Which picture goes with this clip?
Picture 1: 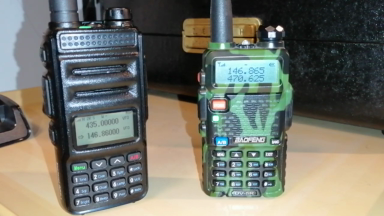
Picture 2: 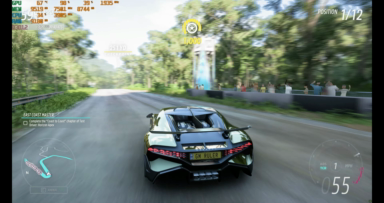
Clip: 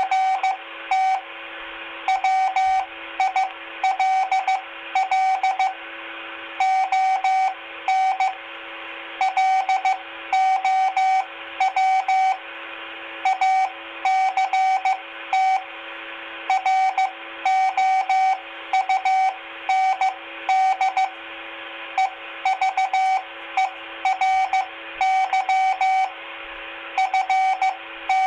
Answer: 1